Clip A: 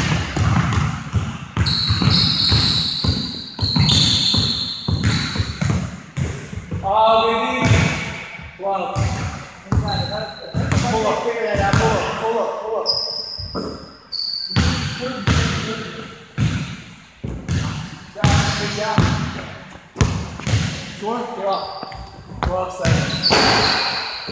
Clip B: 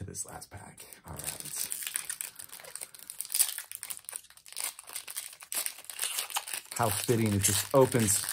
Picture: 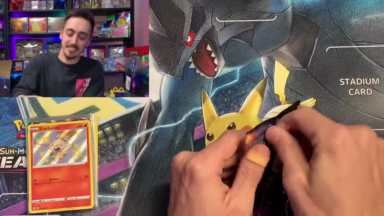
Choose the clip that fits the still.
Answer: B